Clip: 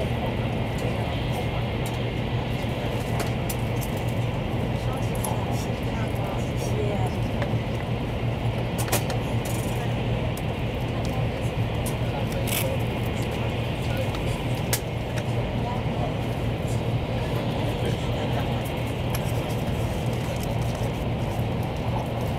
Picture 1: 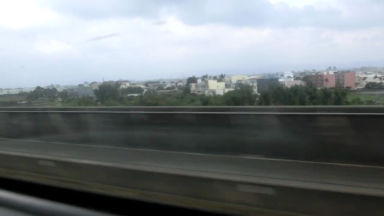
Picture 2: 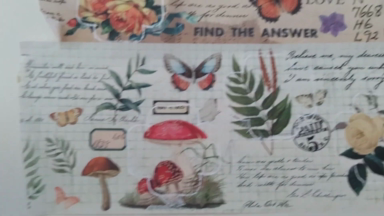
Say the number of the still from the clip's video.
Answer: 1